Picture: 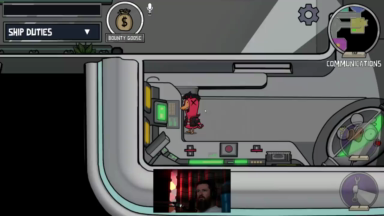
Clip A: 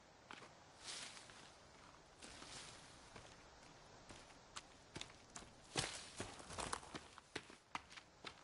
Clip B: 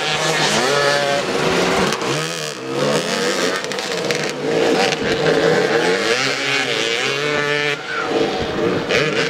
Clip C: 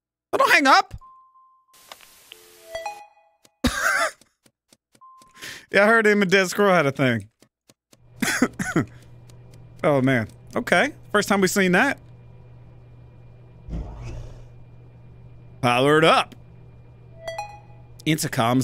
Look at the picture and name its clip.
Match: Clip C